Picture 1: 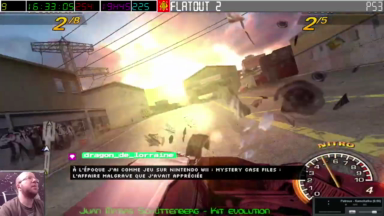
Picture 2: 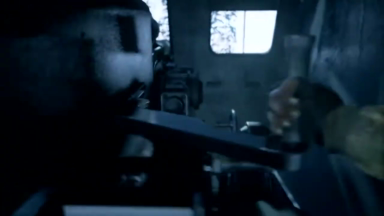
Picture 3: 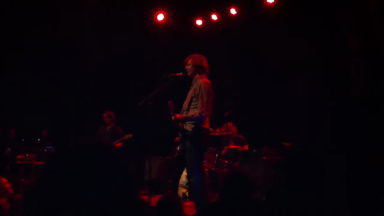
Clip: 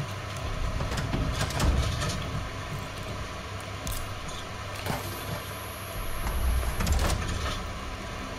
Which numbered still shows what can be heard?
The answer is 2